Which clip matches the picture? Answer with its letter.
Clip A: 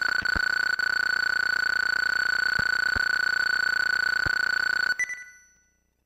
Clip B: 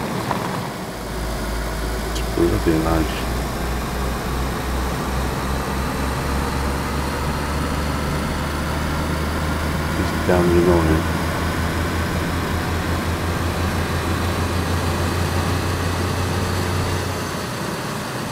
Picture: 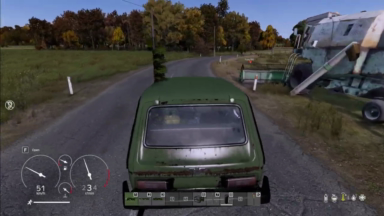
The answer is B